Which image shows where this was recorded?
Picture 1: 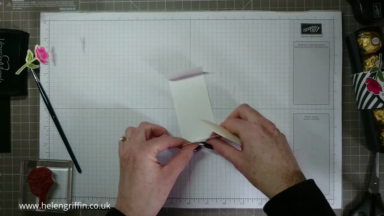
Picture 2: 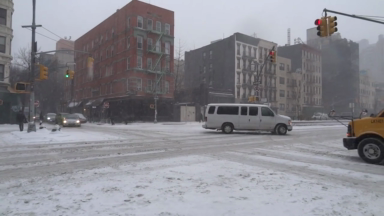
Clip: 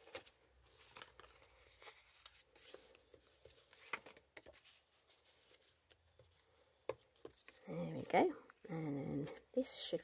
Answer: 1